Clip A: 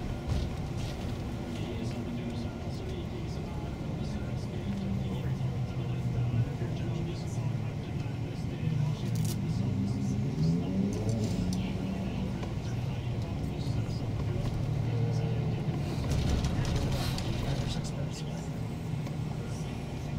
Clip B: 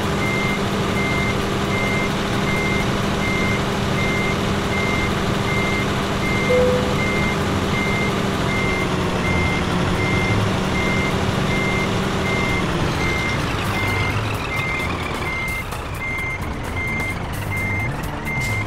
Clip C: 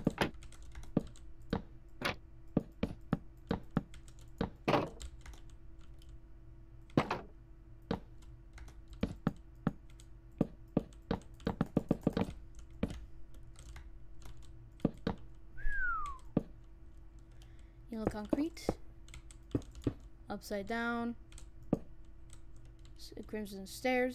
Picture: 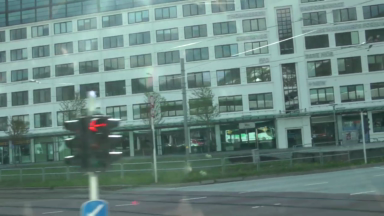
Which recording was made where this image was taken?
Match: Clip A